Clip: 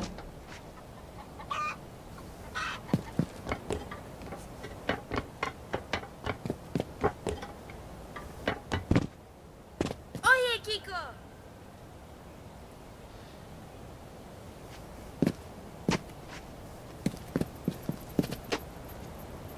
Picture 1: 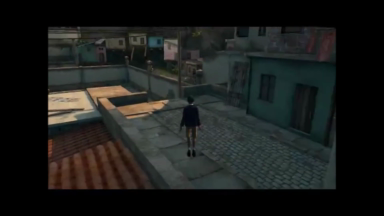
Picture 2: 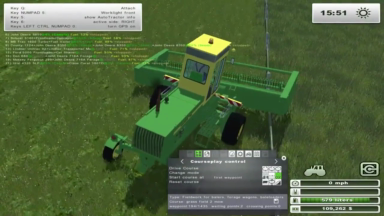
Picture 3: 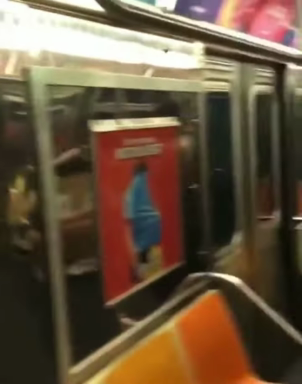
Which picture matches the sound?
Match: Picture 1